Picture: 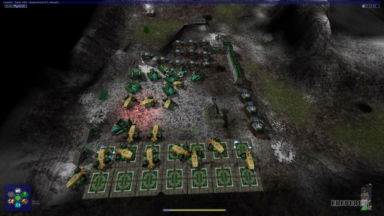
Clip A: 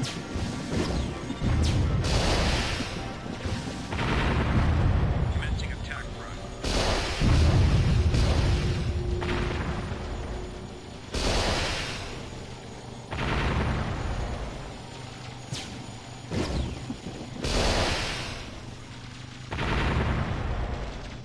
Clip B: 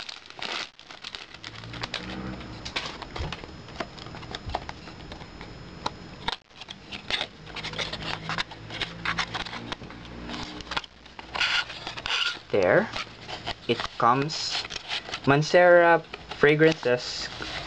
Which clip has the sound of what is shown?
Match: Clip A